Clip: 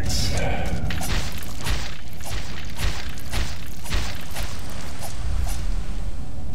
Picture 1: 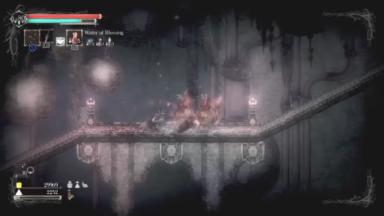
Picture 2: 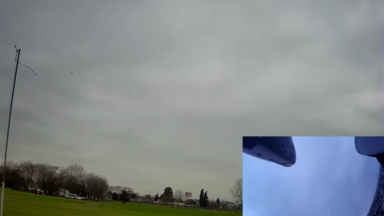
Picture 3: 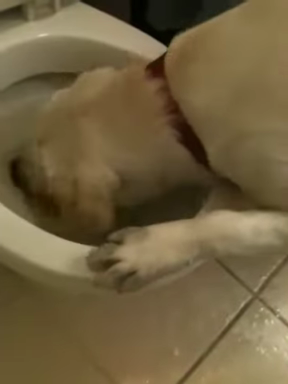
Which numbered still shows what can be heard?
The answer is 1